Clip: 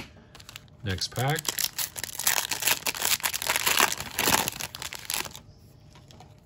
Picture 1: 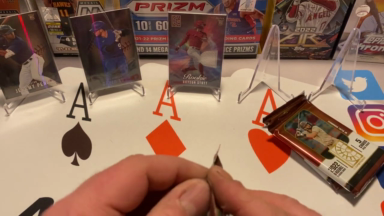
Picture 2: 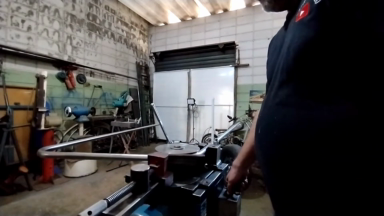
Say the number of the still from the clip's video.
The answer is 1